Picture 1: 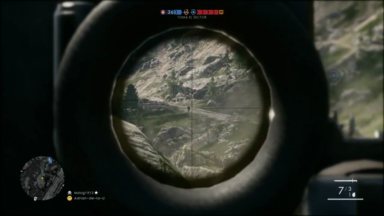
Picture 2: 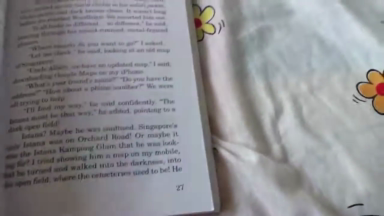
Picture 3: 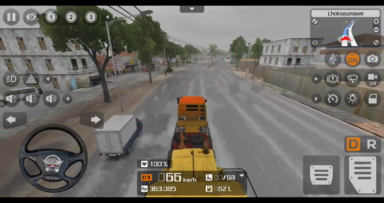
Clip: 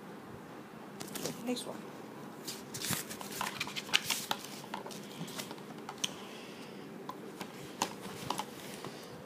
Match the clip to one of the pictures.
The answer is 2